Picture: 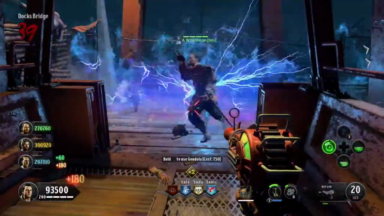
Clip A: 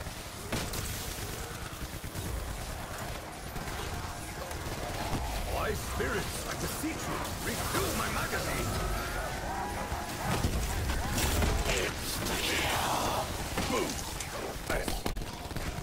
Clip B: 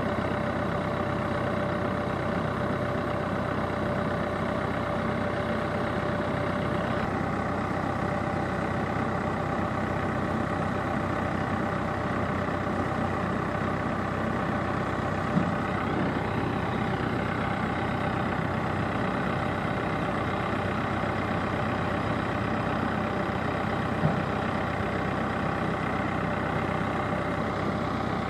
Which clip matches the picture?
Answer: A